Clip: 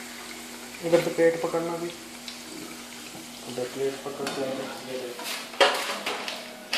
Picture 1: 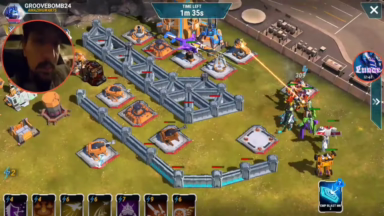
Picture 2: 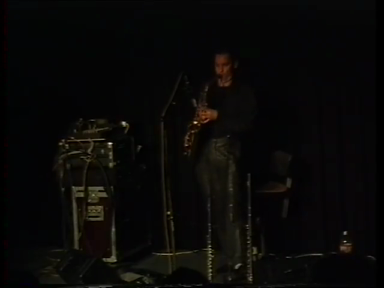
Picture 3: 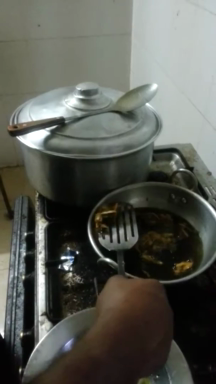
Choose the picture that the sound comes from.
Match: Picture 3